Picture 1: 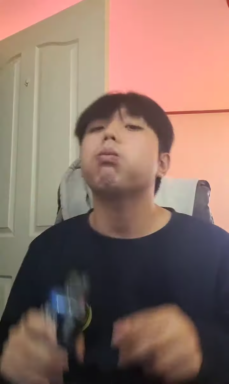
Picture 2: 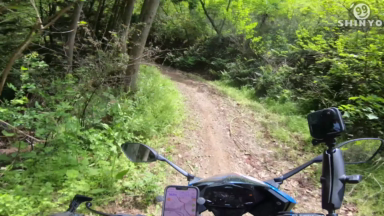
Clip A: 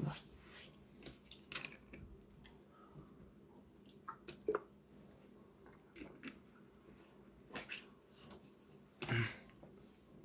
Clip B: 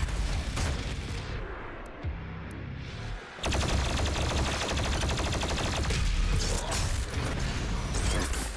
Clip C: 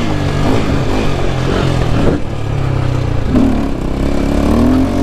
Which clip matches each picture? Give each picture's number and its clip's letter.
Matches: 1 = A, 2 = C